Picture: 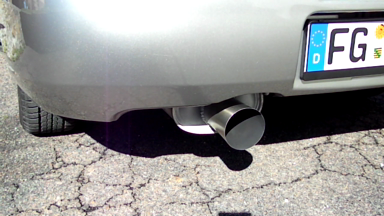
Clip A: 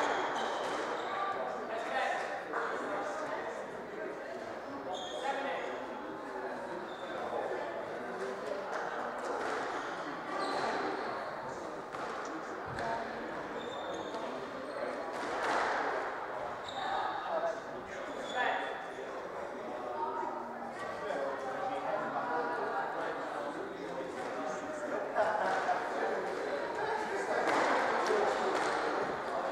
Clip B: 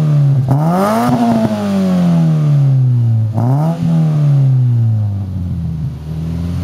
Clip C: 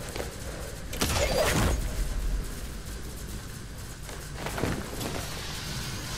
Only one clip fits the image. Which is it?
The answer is B